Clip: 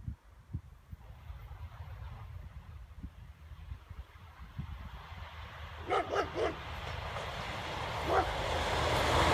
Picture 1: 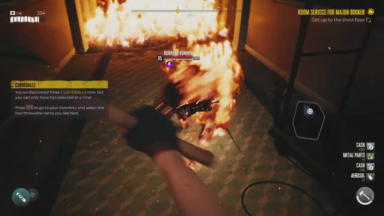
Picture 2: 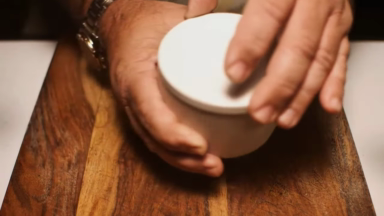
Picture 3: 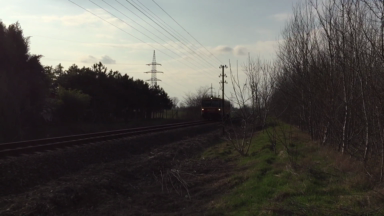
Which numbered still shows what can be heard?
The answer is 3